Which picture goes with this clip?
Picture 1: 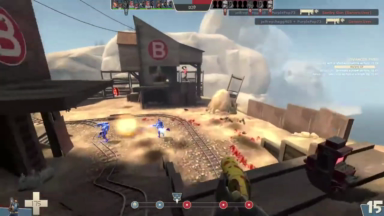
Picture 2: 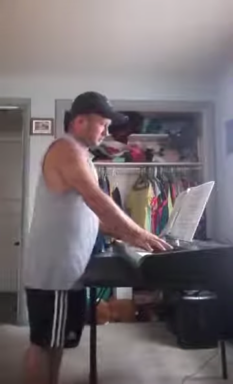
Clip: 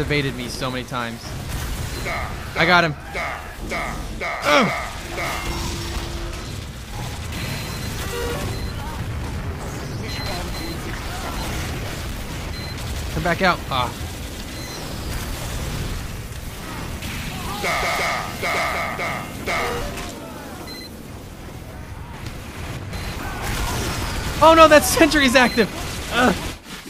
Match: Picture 1